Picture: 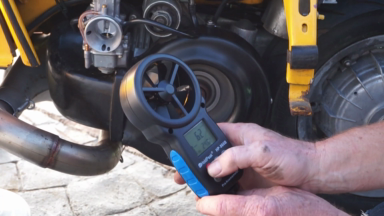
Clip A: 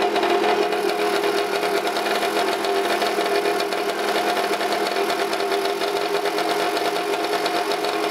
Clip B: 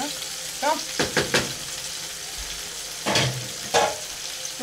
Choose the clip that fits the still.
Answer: A